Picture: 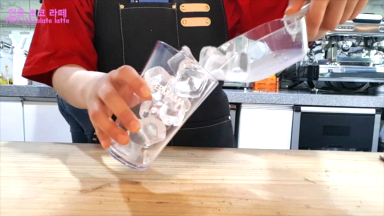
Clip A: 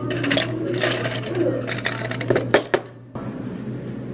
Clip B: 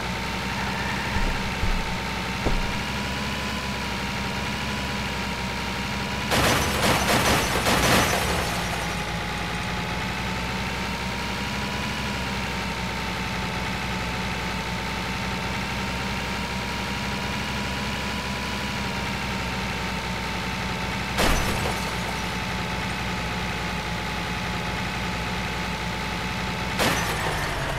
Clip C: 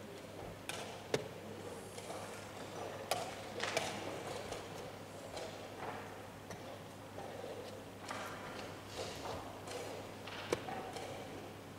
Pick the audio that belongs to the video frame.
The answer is A